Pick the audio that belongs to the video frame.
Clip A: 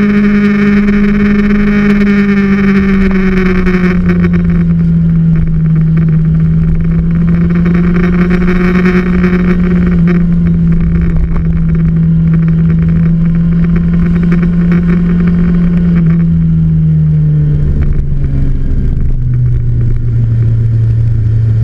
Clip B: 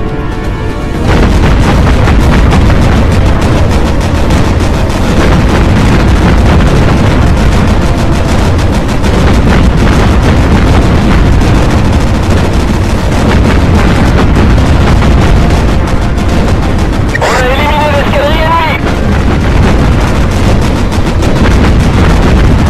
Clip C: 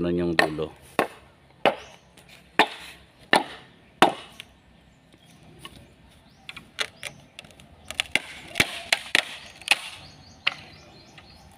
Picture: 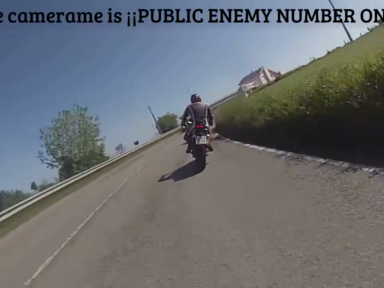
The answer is A